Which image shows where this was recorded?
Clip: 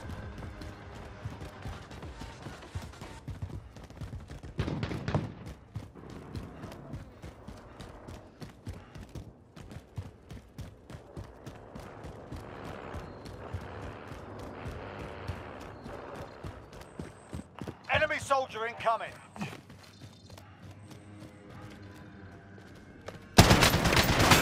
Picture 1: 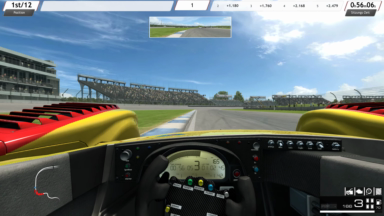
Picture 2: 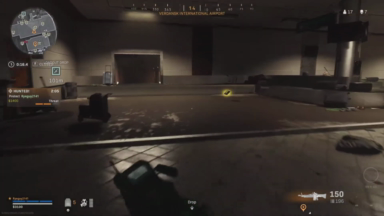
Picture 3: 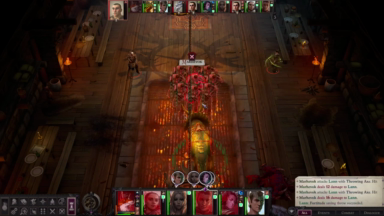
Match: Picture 2